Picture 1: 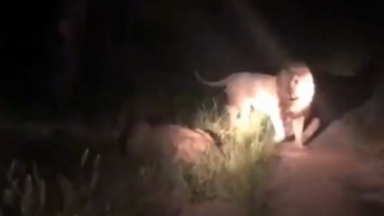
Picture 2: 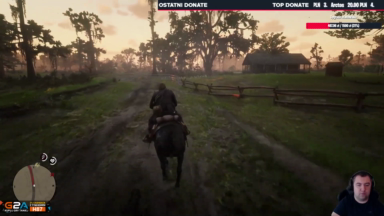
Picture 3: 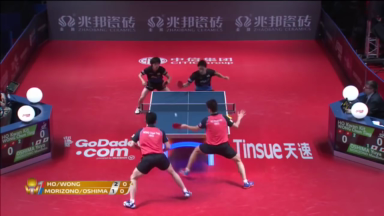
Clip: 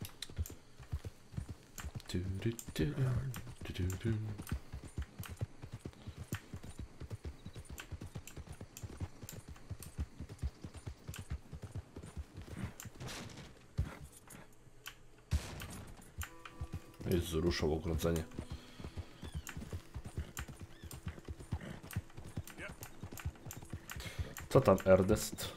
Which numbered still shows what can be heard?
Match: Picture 2